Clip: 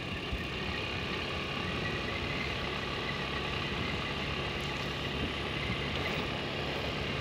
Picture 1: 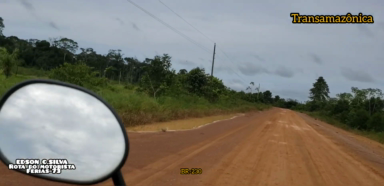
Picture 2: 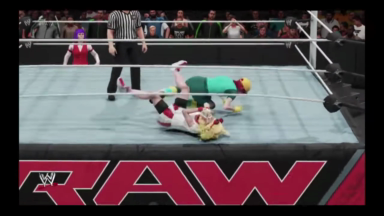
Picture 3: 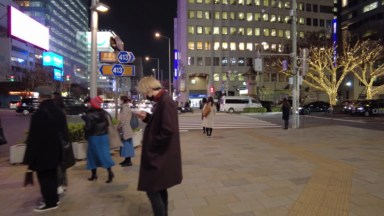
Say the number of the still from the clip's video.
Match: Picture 1